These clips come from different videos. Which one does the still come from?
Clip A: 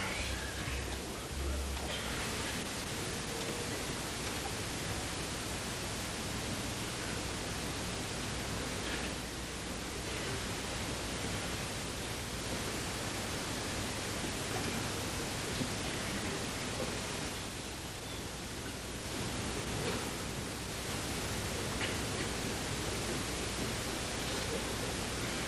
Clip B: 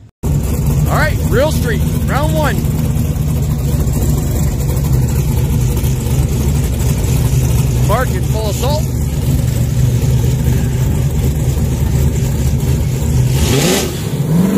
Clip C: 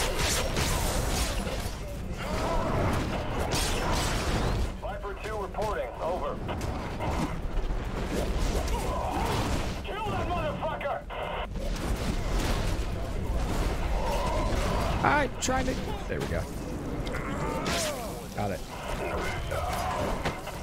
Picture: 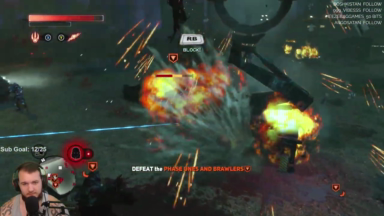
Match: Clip C